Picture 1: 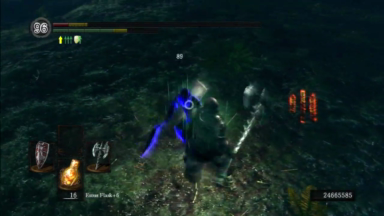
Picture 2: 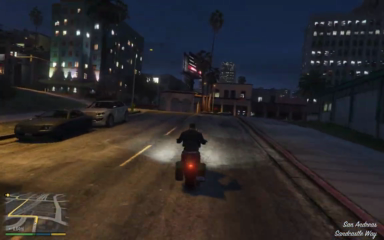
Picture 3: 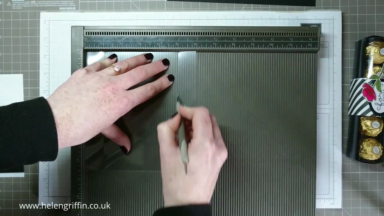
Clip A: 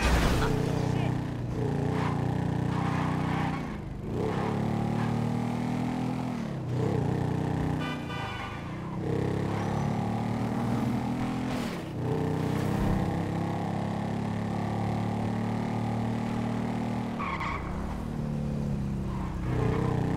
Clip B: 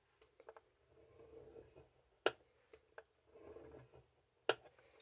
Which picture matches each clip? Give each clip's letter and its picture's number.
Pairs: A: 2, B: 3